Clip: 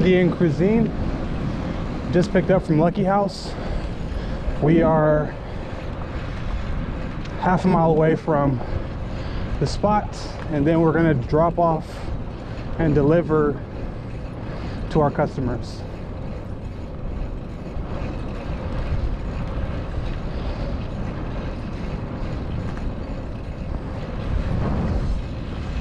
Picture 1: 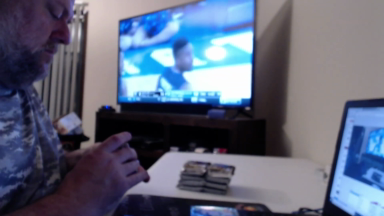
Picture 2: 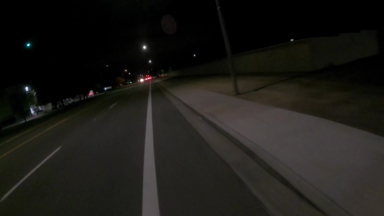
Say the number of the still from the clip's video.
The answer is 2